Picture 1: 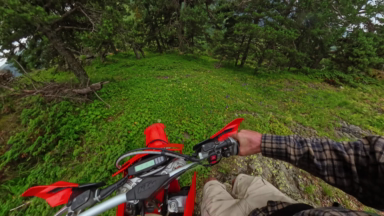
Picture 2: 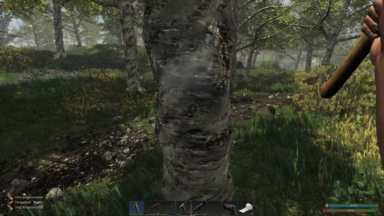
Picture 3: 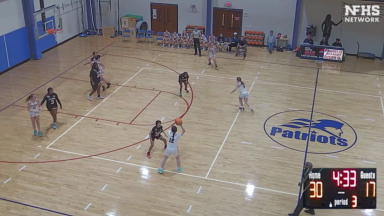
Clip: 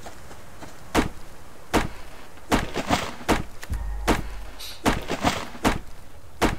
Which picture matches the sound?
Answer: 2